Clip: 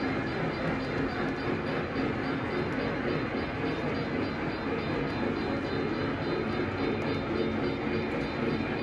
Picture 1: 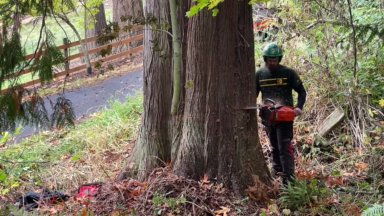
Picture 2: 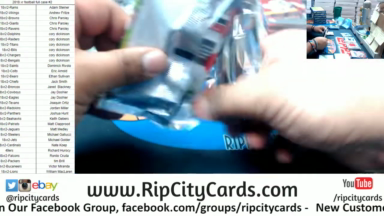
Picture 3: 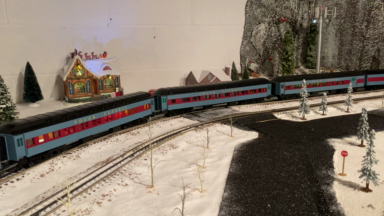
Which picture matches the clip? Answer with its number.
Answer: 3